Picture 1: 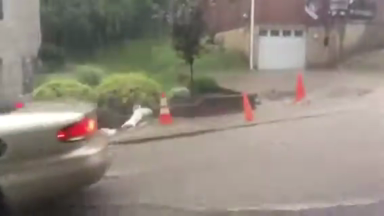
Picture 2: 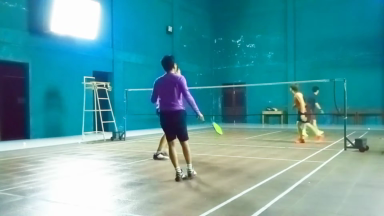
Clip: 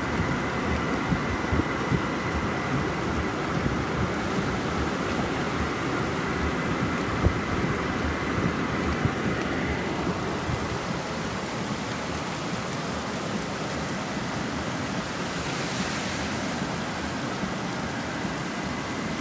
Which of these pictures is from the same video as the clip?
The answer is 1